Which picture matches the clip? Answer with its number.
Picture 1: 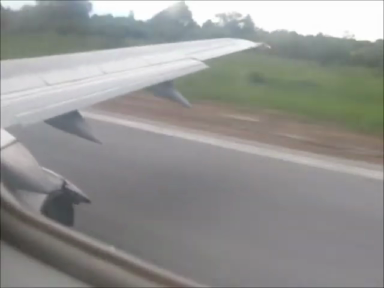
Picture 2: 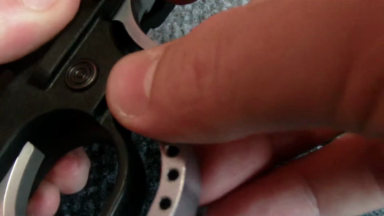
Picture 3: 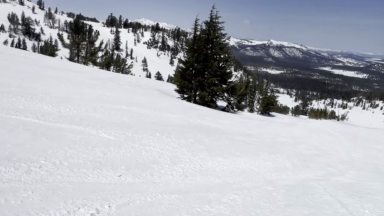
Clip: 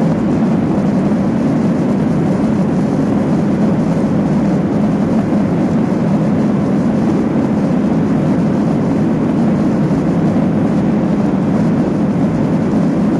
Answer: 1